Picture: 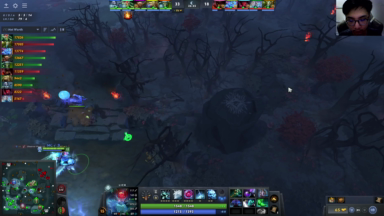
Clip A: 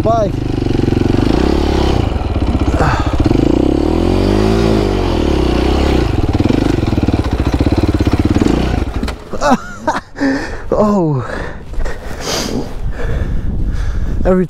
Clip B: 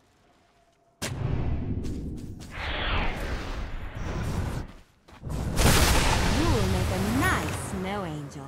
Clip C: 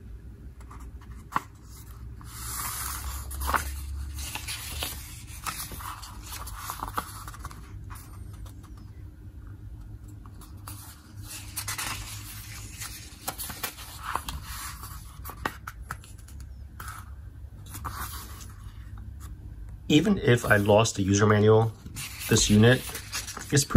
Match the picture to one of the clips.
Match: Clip B